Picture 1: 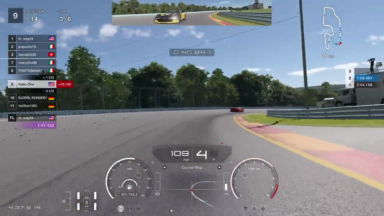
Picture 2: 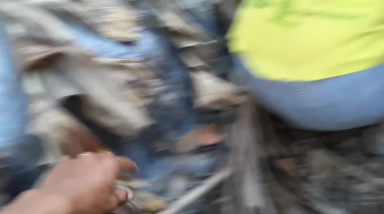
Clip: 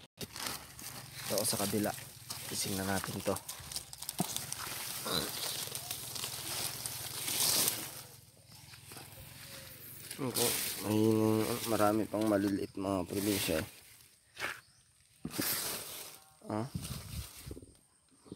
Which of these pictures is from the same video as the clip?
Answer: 2